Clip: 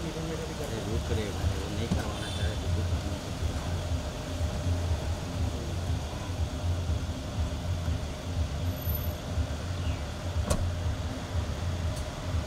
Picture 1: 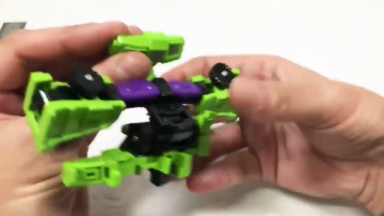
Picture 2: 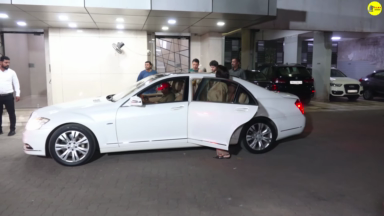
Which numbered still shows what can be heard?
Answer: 2